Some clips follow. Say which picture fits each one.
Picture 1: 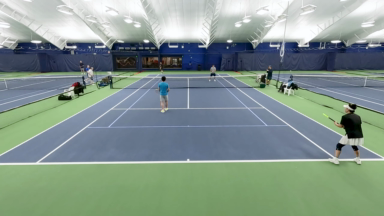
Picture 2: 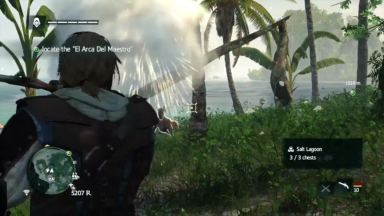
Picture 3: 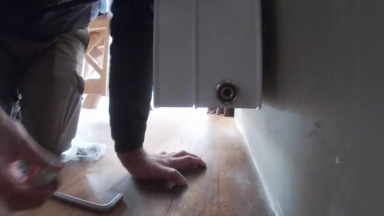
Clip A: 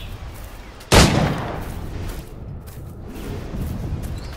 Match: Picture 2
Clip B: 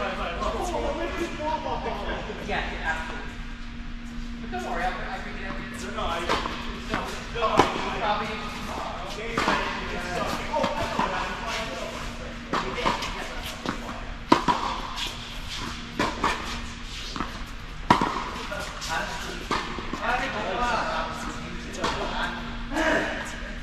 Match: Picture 1